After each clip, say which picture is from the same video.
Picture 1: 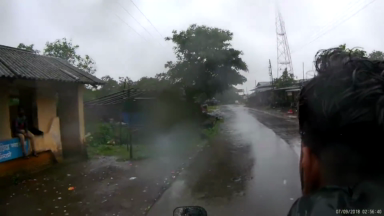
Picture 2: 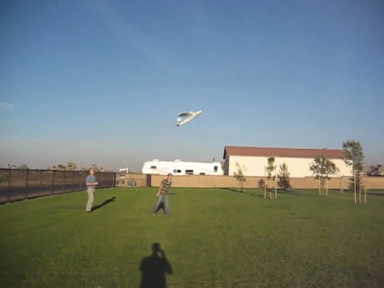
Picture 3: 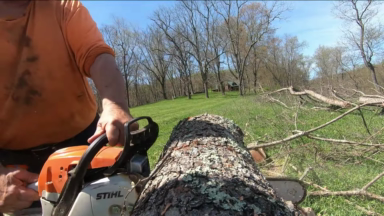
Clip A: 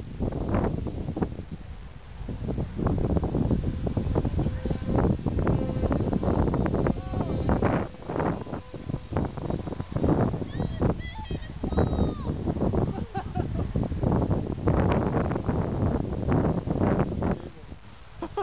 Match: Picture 2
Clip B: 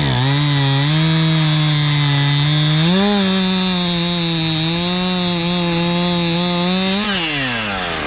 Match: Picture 3